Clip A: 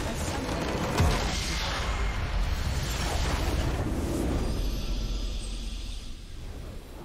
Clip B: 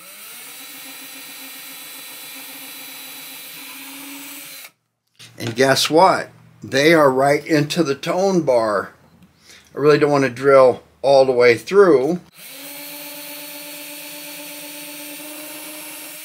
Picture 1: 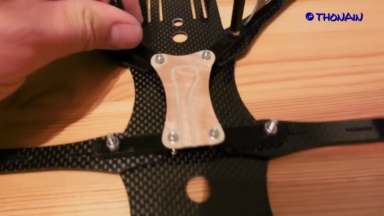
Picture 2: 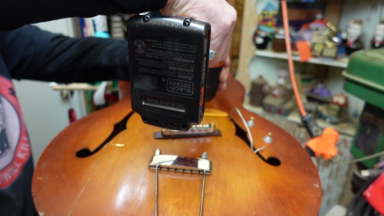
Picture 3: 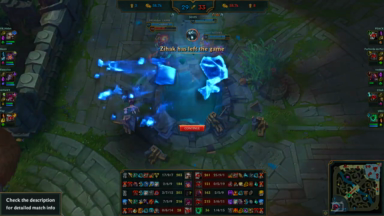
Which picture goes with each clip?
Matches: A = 3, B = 2